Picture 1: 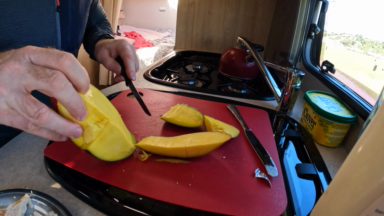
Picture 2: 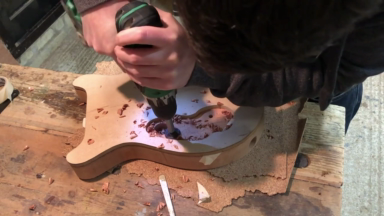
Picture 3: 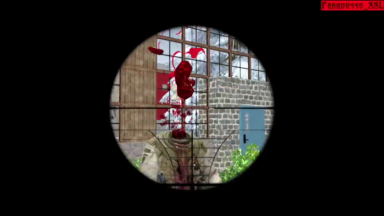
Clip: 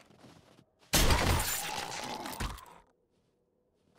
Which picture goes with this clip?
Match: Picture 3